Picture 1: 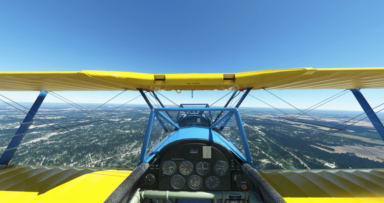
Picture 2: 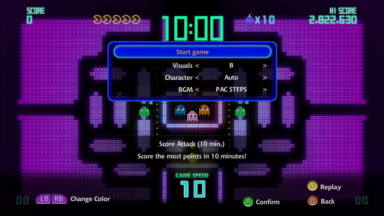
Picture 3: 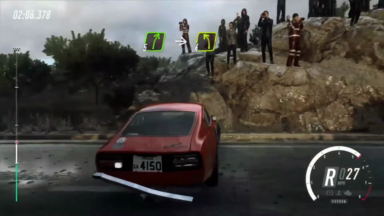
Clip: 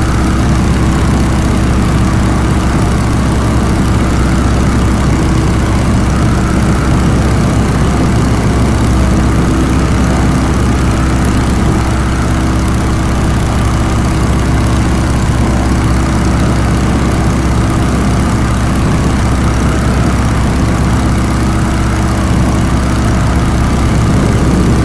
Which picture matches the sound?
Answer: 1